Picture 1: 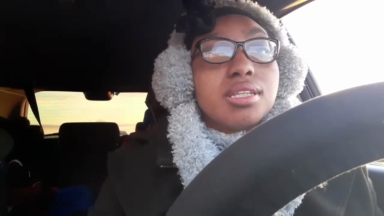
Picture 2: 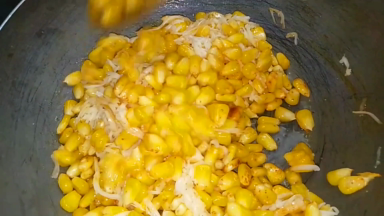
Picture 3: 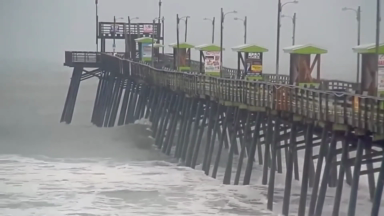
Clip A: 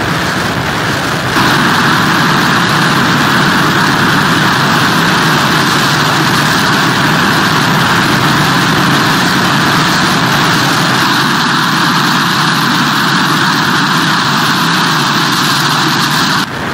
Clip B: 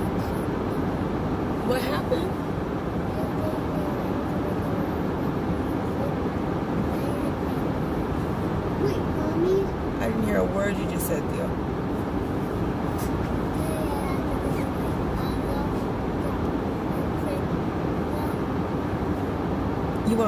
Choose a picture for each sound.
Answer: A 3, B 1